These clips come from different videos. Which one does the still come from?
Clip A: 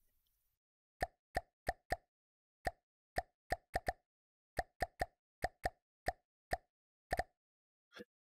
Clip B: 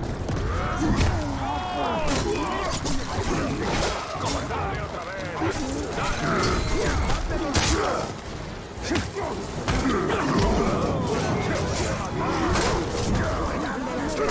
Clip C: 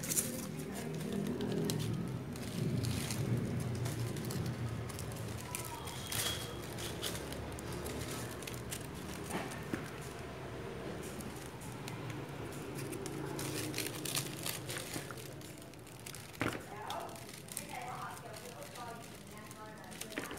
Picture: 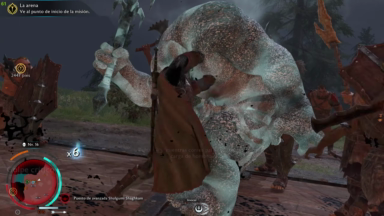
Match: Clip B